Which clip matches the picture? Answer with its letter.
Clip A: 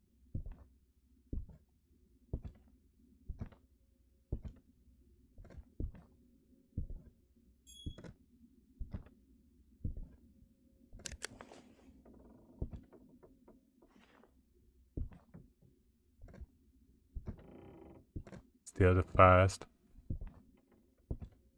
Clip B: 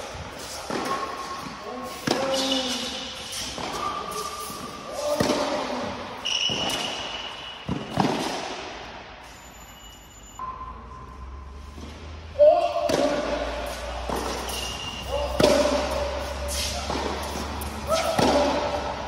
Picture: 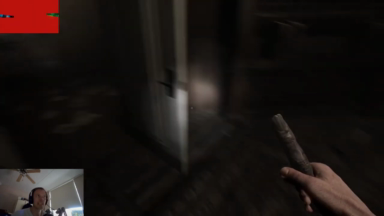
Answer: A